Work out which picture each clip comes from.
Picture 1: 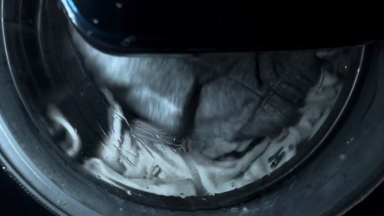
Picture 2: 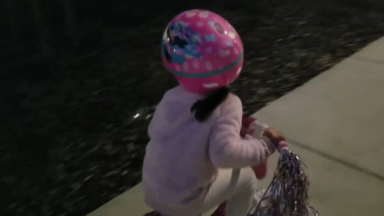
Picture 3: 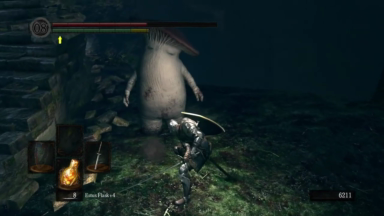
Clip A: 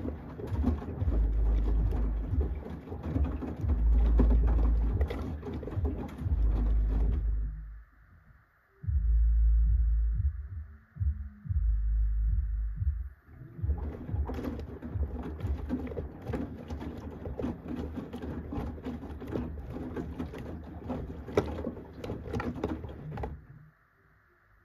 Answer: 1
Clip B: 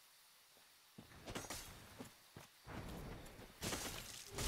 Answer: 3